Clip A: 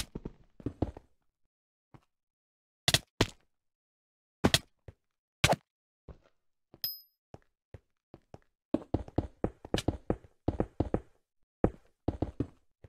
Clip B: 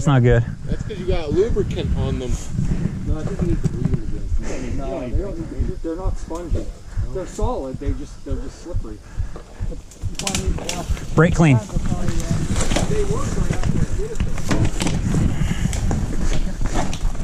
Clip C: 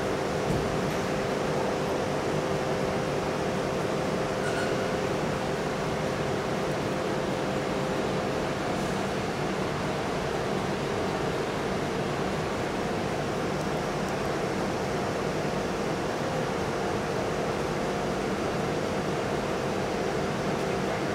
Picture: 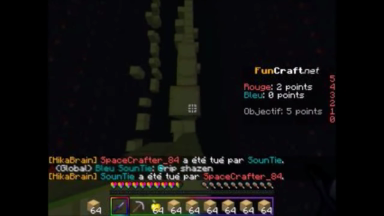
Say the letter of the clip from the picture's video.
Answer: A